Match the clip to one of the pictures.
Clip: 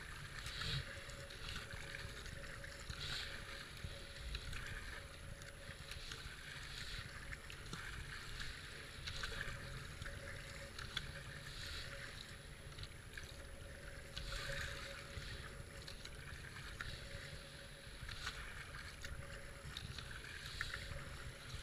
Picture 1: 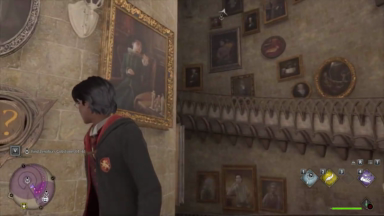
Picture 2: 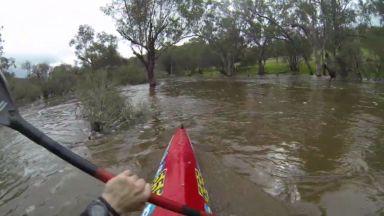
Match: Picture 2